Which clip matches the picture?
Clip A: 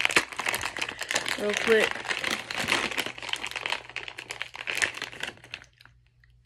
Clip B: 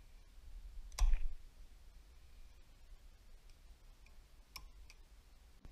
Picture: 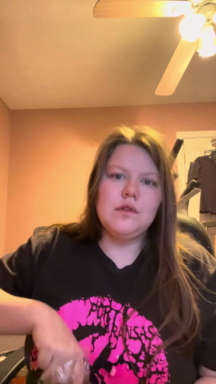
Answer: A